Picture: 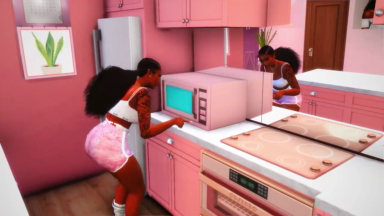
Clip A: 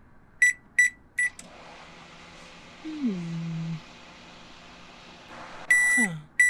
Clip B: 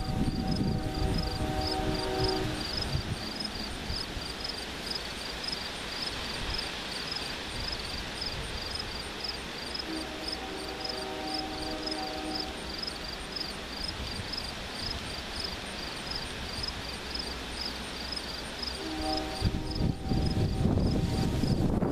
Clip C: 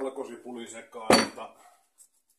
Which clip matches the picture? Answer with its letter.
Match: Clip A